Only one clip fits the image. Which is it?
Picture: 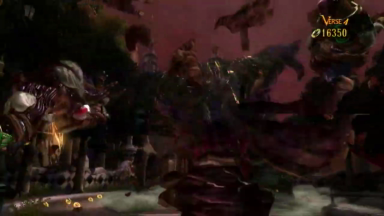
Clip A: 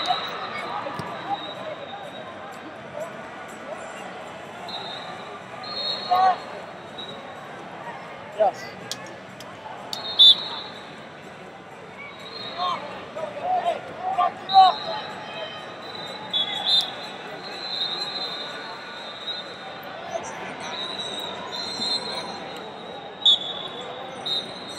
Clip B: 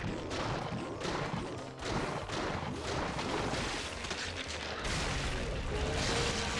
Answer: B